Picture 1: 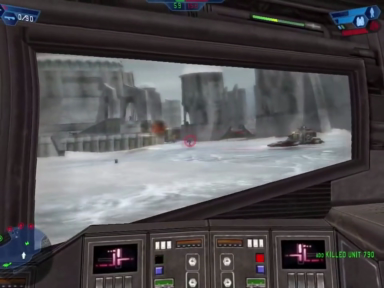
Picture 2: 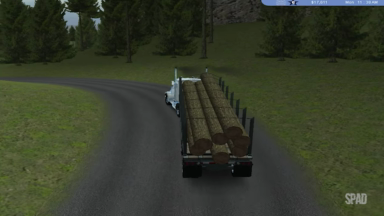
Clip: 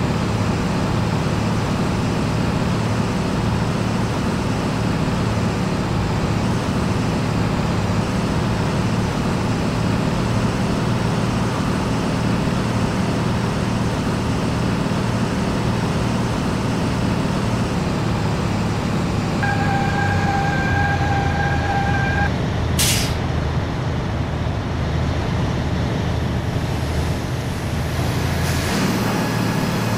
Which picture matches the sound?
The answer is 2